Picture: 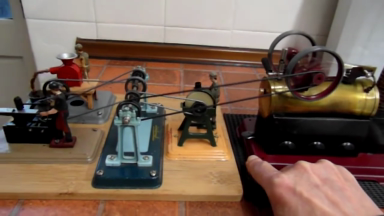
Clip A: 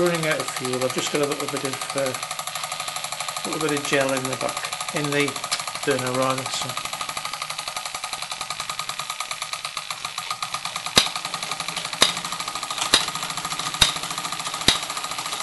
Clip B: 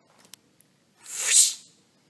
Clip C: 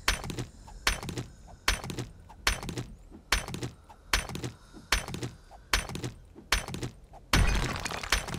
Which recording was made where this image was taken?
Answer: A